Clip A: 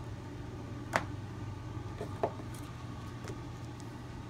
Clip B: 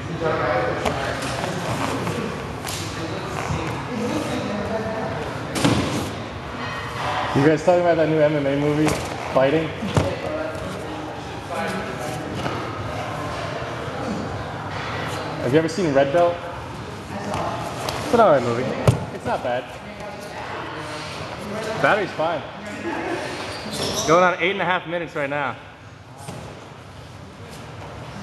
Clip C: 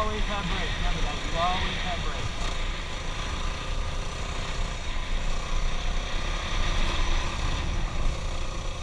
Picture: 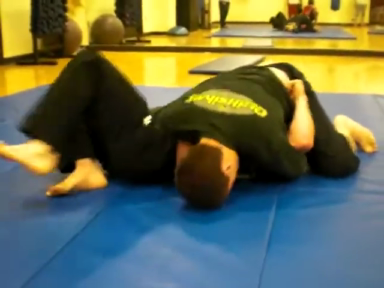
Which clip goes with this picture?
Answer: B